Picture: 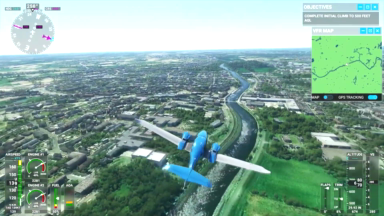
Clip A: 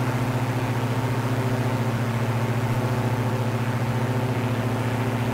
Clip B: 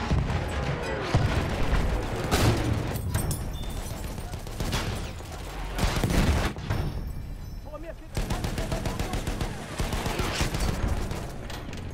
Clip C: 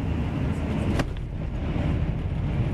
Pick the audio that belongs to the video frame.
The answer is A